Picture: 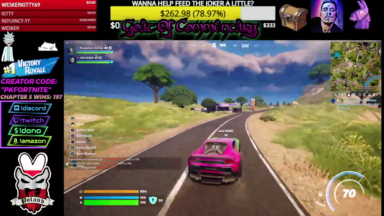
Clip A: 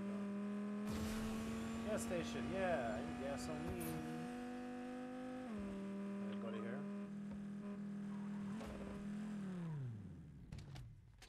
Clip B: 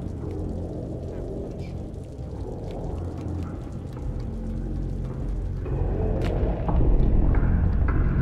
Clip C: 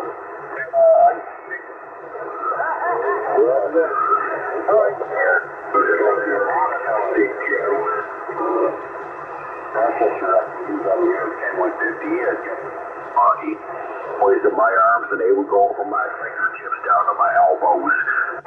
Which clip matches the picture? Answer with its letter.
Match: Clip A